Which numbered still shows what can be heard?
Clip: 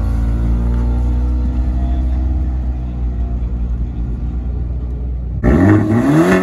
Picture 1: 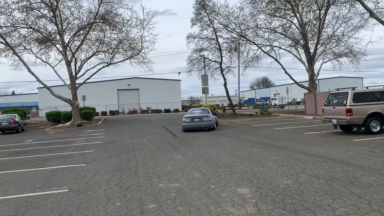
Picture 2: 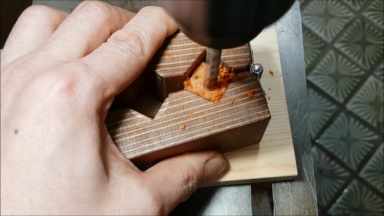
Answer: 1